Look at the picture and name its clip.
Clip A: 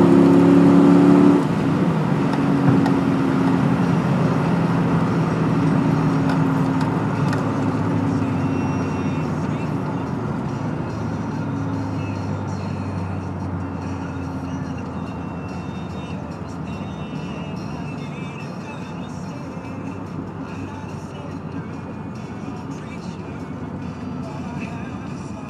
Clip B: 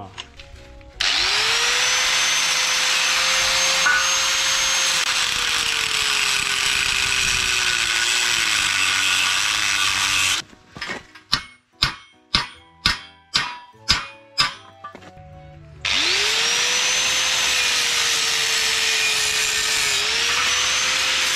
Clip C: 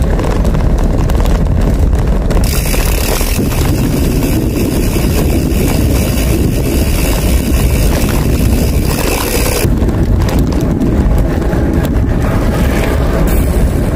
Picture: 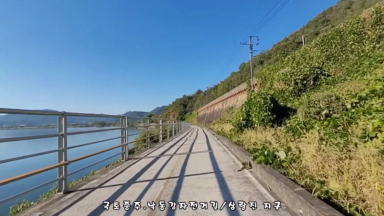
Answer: C